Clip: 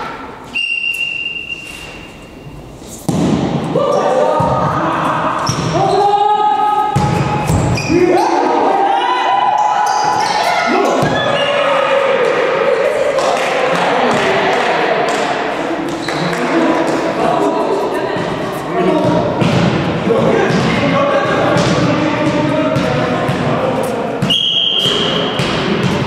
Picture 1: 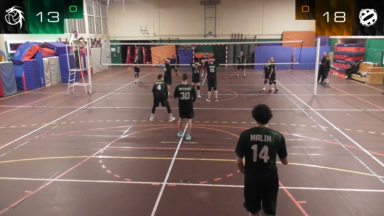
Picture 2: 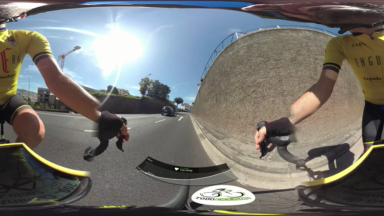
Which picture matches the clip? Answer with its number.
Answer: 1